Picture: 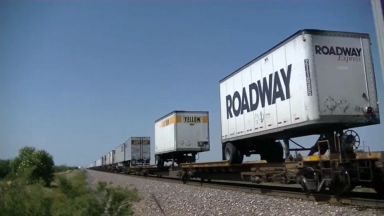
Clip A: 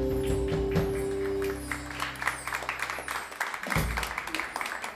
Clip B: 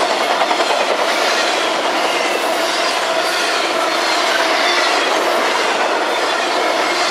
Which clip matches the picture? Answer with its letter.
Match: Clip B